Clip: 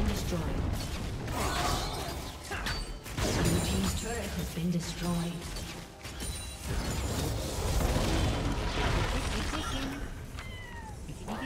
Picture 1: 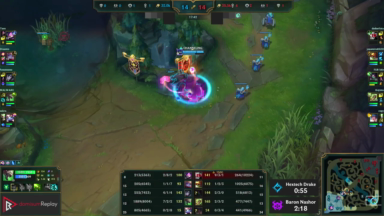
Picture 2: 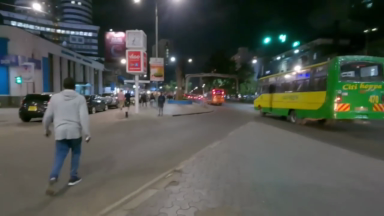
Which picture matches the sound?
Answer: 1